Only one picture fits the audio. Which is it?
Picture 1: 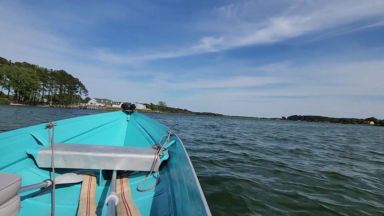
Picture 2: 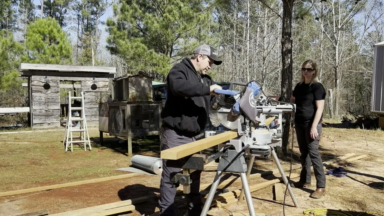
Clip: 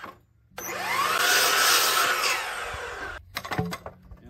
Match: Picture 2